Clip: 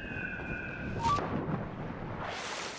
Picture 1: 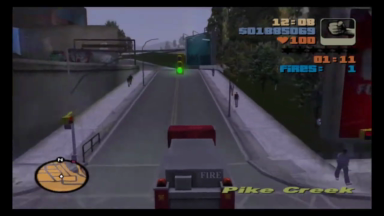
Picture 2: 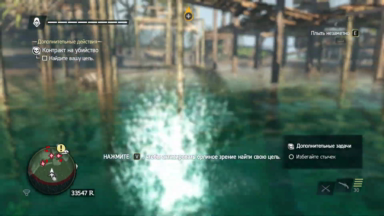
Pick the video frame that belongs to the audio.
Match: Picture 2